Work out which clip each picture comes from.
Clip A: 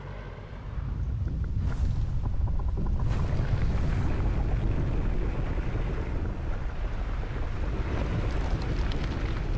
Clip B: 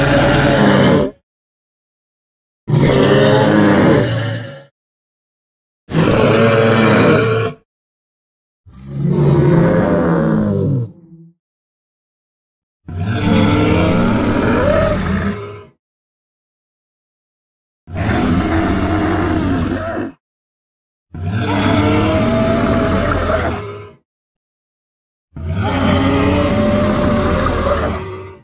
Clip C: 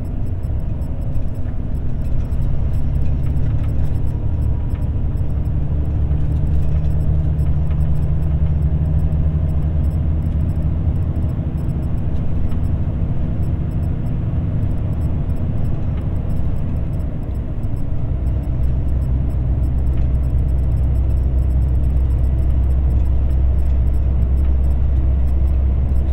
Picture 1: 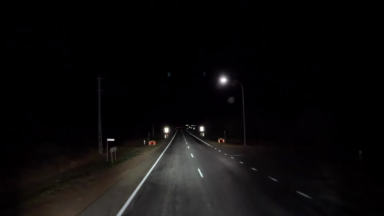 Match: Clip C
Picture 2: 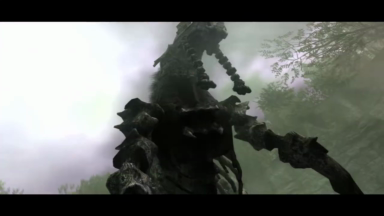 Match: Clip A